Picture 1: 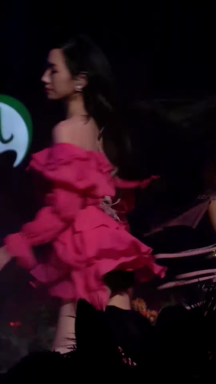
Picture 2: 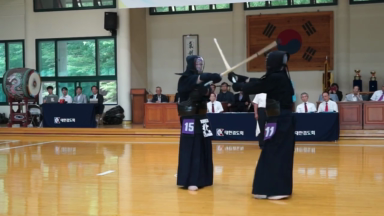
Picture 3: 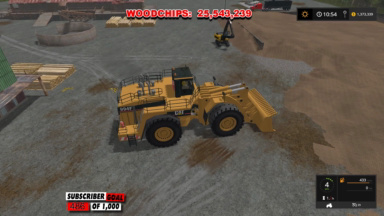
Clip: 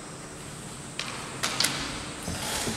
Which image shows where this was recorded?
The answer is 2